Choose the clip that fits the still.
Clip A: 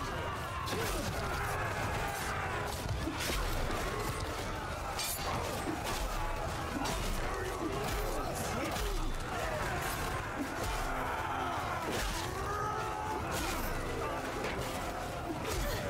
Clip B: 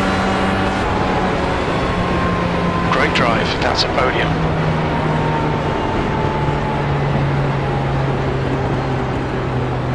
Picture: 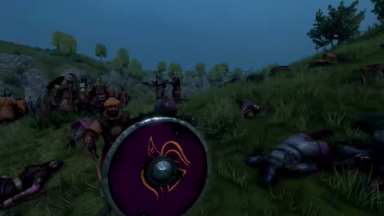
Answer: A